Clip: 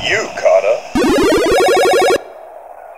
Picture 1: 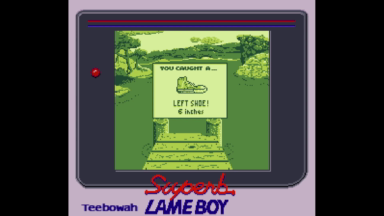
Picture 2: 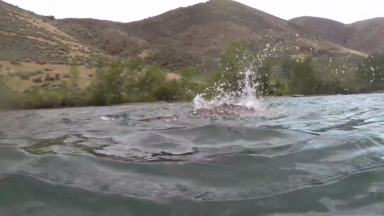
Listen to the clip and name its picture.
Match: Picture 1